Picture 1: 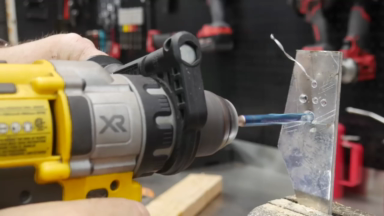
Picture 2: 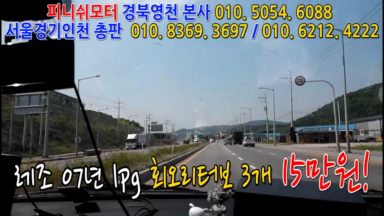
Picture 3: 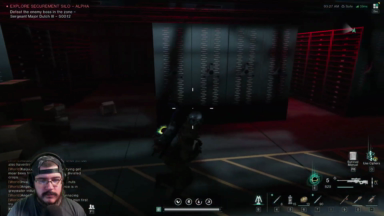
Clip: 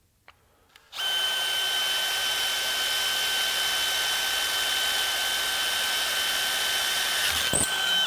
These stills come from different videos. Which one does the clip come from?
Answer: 1